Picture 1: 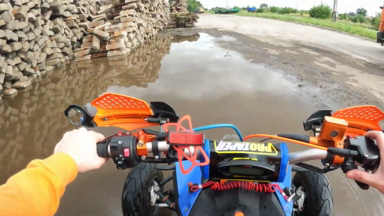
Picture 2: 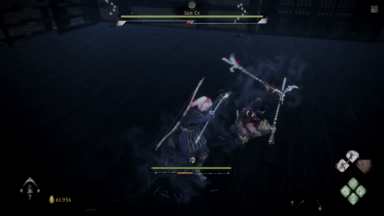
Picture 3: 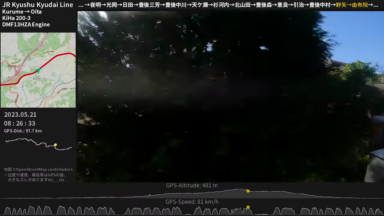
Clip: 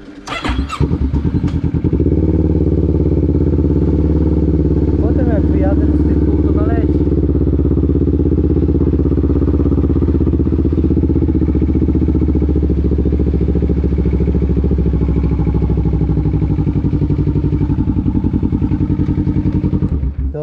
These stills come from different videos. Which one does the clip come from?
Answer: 1